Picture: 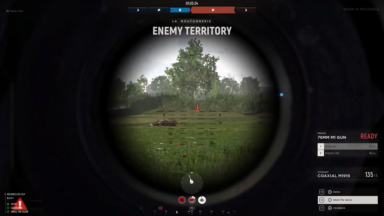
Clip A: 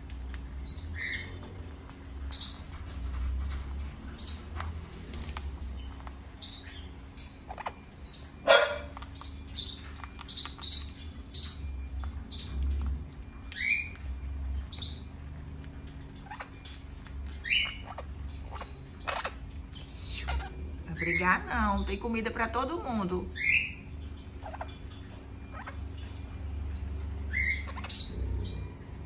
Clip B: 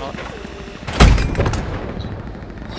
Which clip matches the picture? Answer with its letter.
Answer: B